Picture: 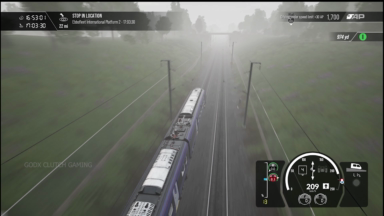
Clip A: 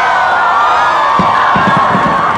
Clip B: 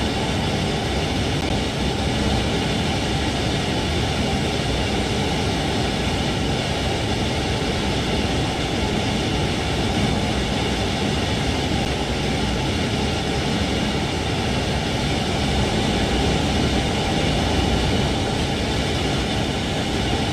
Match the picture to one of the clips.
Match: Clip B